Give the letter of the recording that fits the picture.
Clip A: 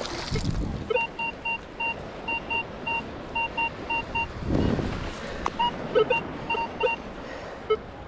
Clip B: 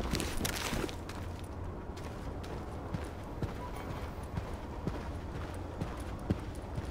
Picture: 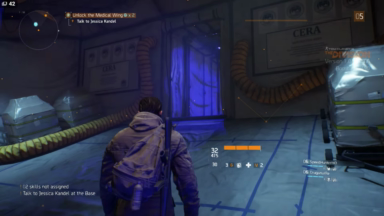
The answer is B